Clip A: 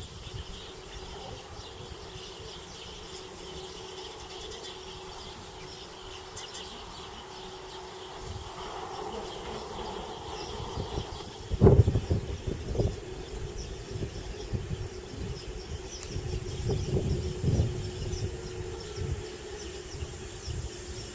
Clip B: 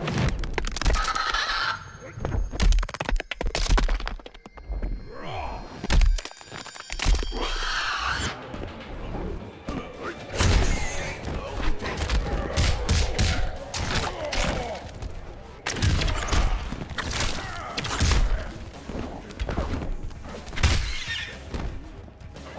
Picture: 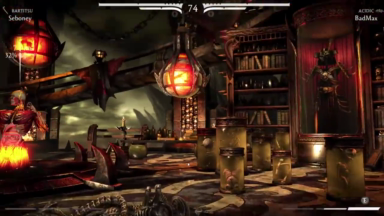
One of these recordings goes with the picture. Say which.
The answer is B